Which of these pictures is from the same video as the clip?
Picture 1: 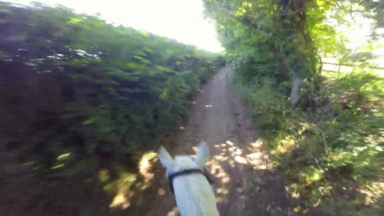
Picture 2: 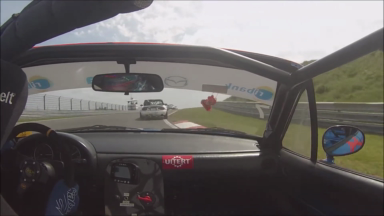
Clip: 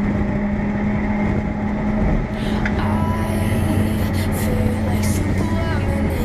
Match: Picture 2